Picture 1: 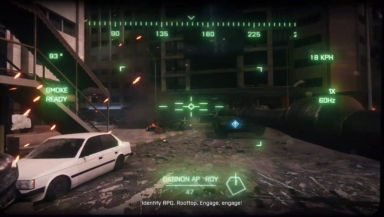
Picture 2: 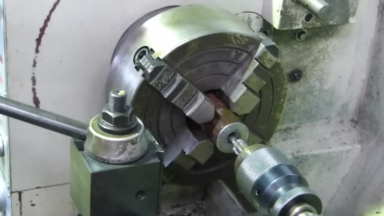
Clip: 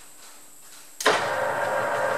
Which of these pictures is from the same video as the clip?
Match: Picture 2